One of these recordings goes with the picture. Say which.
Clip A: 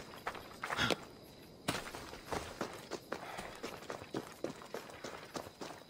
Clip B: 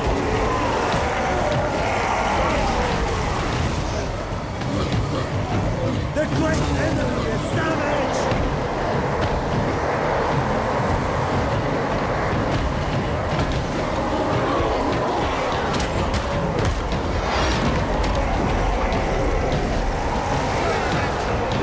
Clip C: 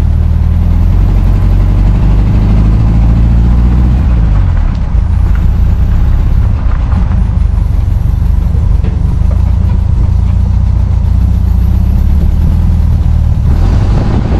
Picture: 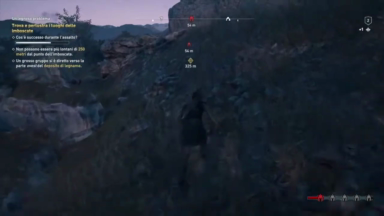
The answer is A